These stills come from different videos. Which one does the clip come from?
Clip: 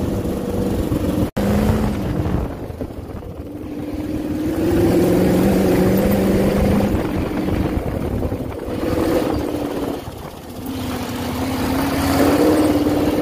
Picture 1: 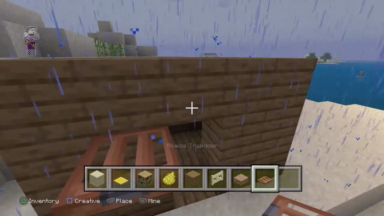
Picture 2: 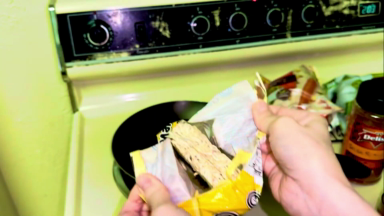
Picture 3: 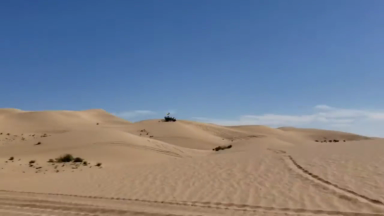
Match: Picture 3